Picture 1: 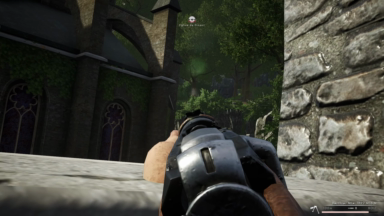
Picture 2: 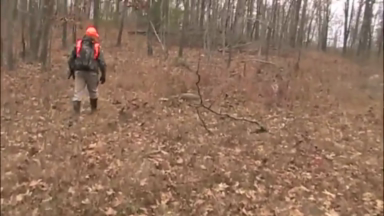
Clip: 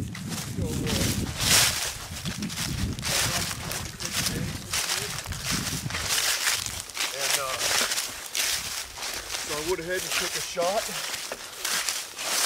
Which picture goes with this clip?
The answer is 2